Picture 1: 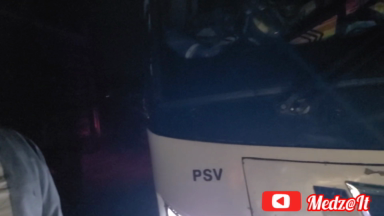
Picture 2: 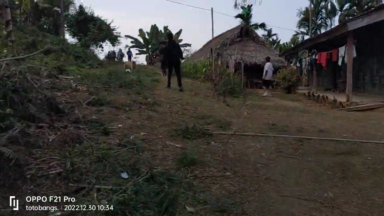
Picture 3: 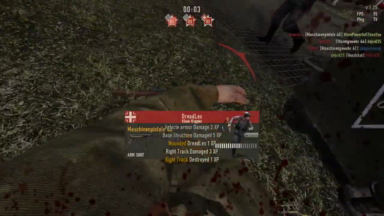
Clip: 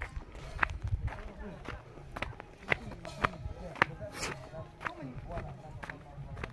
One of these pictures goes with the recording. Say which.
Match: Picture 2